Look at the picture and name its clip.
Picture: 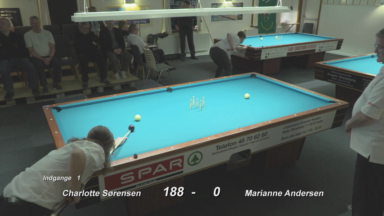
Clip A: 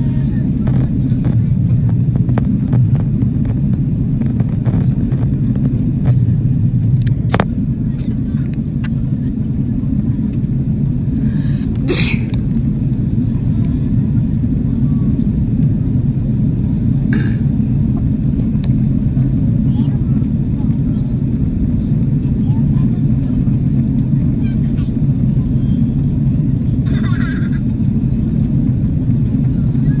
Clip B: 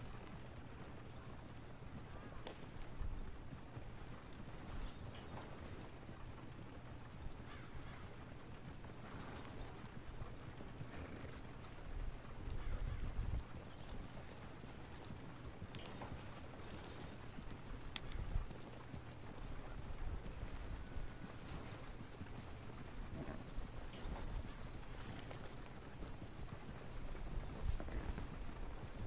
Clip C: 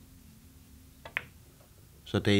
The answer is C